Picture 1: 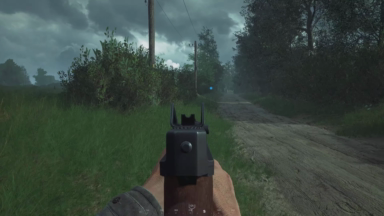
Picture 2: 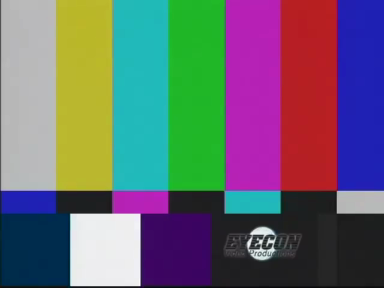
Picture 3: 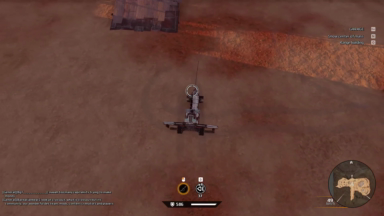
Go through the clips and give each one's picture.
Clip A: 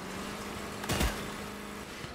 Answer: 3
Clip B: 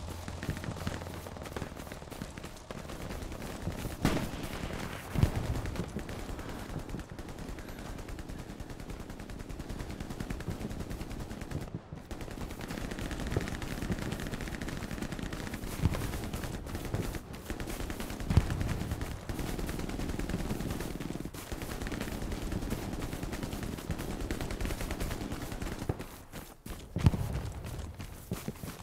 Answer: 1